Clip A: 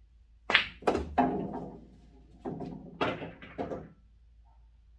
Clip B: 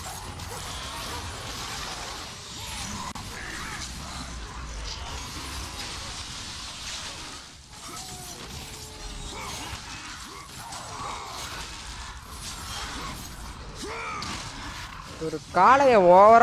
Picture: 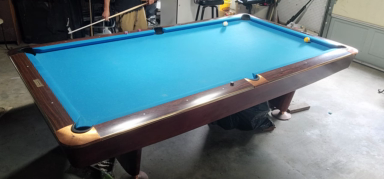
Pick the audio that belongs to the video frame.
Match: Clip A